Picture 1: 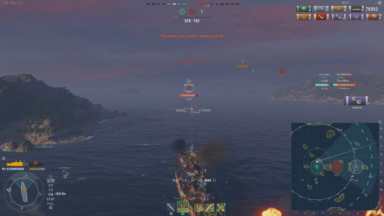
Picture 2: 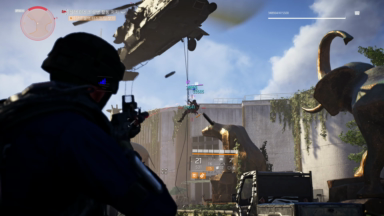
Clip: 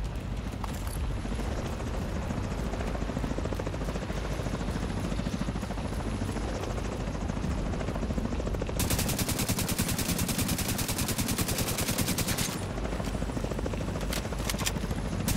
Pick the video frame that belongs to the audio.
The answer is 2